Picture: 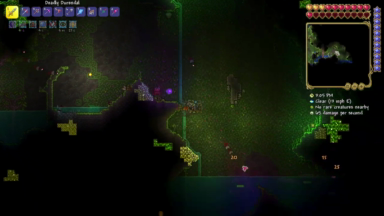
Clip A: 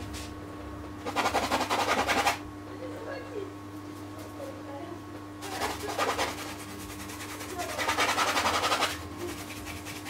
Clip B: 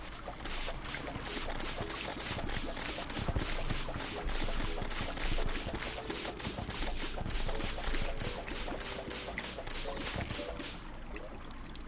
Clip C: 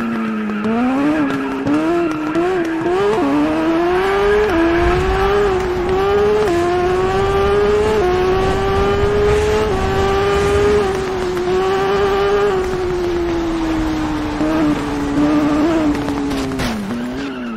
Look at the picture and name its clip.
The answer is B